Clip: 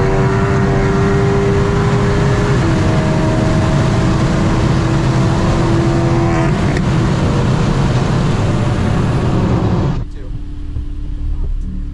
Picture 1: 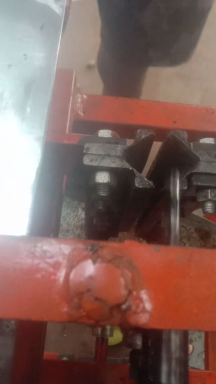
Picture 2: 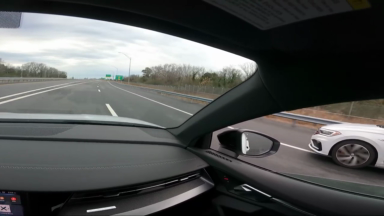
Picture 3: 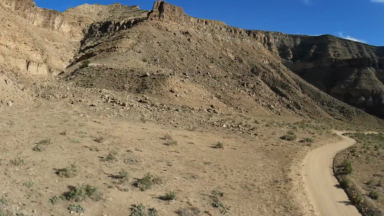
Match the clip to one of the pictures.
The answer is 2